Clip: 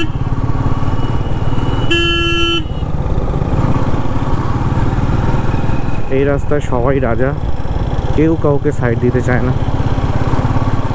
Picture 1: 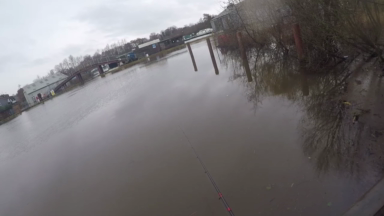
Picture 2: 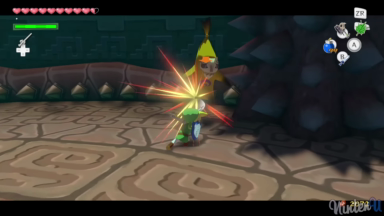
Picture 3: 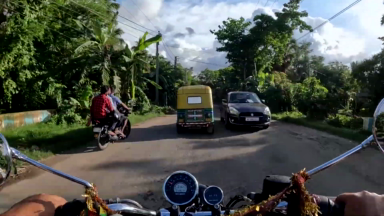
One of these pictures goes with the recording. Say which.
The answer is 3